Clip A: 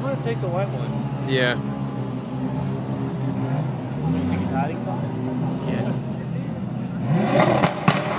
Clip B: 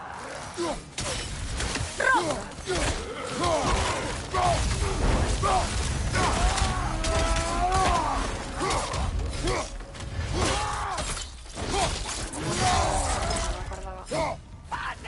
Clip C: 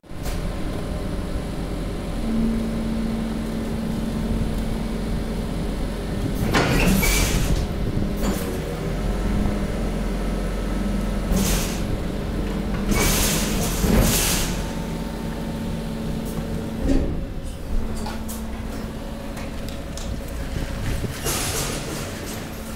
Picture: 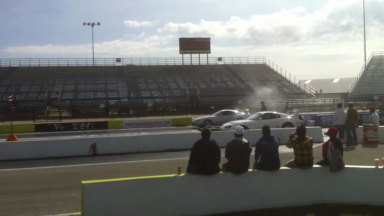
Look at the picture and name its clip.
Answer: A